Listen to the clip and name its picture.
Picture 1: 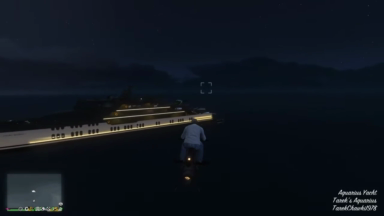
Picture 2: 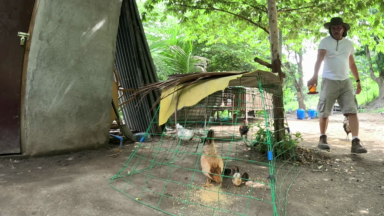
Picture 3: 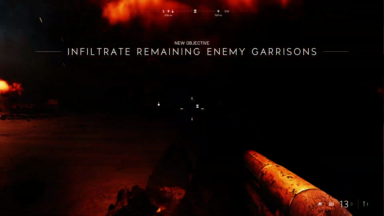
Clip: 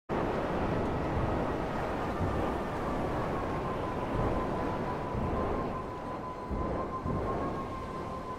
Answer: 1